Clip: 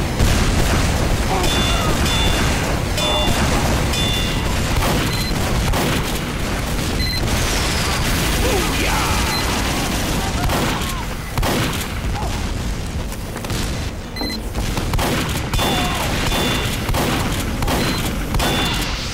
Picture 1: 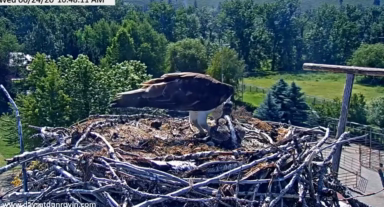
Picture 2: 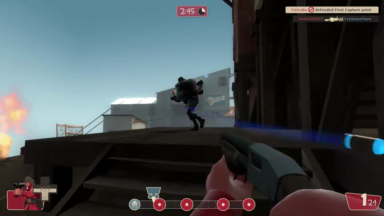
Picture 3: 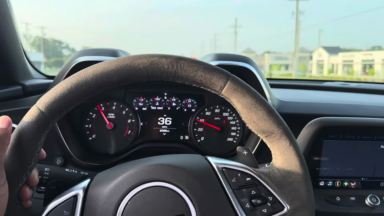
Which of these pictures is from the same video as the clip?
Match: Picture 2